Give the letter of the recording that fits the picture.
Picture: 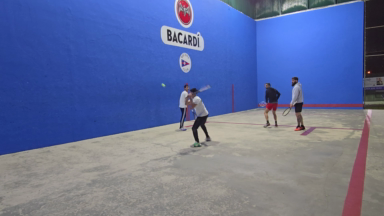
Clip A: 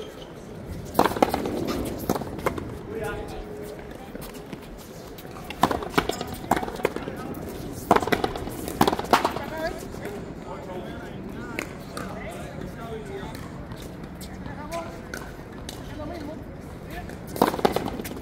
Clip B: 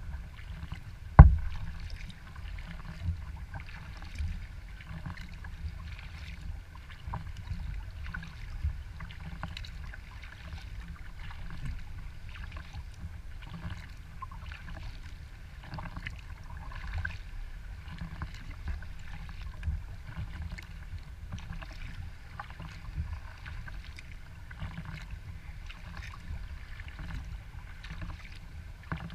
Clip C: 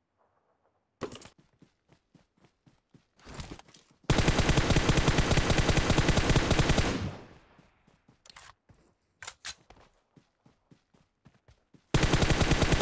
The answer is A